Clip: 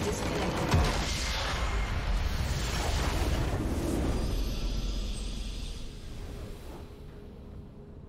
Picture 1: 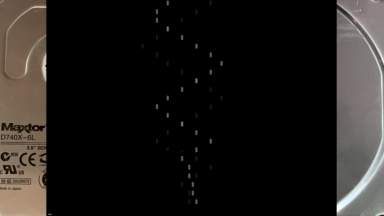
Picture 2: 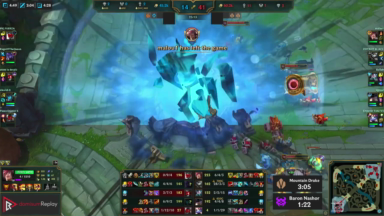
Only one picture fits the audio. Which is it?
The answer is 2